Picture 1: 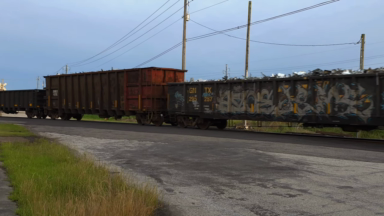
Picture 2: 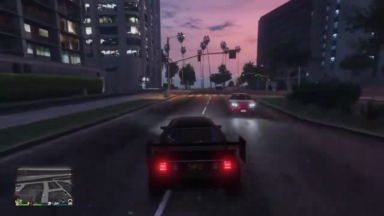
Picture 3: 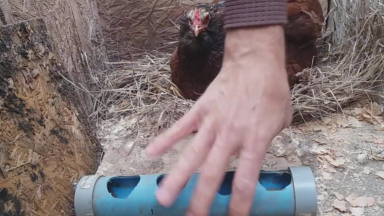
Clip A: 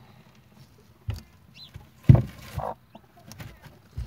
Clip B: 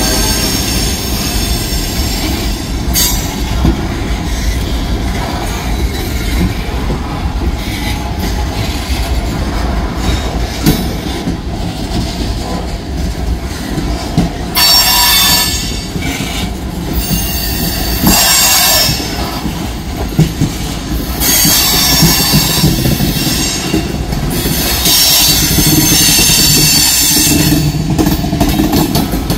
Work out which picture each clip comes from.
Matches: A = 3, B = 1